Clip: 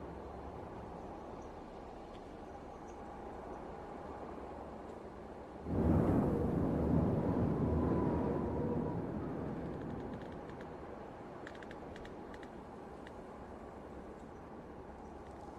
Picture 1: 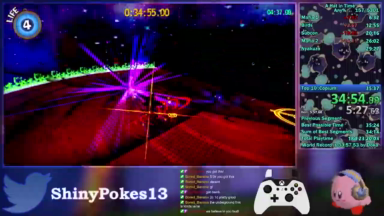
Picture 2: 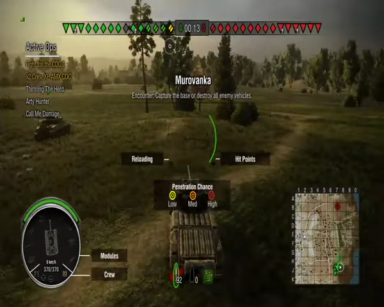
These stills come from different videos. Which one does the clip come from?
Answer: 2